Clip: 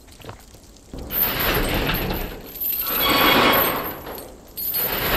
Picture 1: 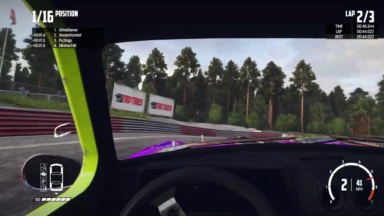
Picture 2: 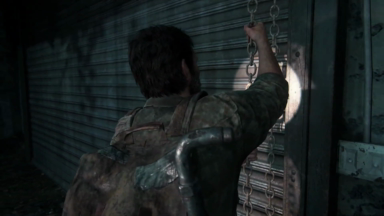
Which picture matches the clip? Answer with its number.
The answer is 2